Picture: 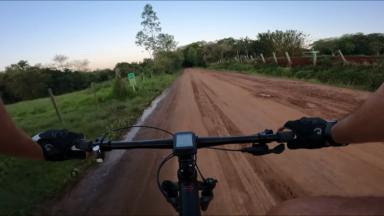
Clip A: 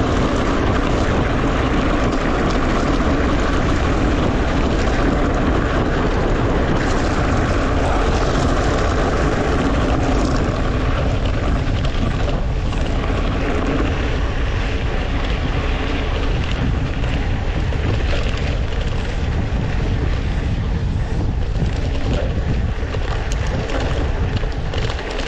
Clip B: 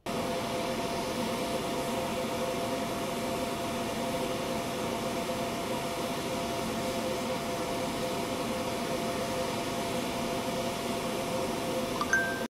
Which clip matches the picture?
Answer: A